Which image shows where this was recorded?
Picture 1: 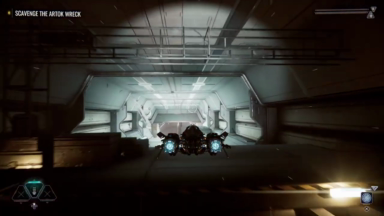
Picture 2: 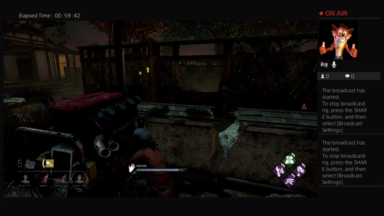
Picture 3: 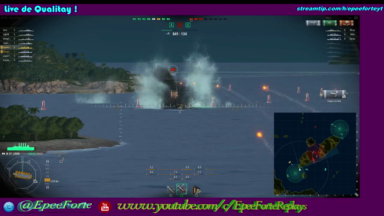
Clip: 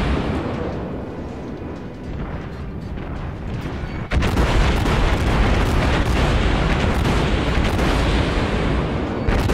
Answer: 3